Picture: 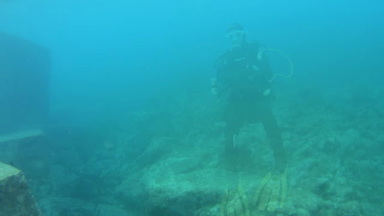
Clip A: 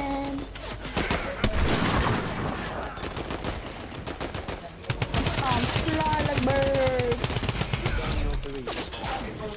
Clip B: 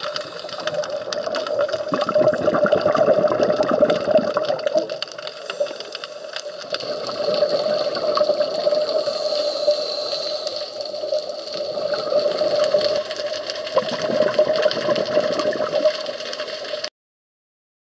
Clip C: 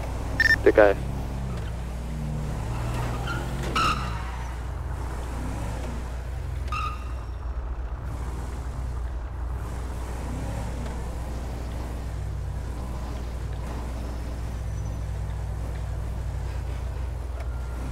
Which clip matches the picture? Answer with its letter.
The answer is B